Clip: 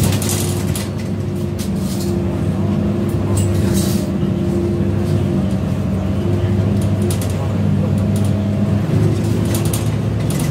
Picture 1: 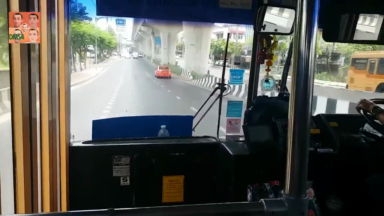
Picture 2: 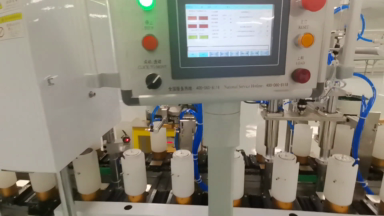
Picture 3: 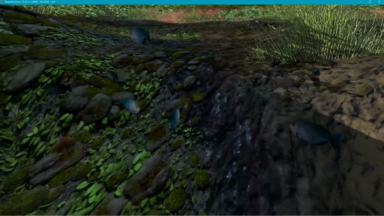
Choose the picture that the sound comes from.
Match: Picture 1